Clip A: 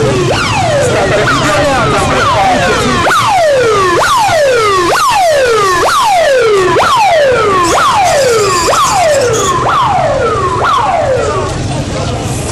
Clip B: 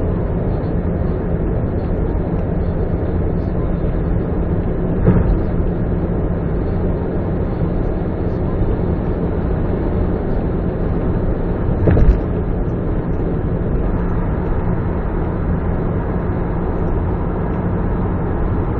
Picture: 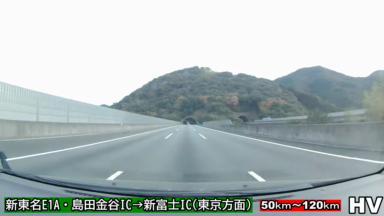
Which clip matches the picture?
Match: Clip B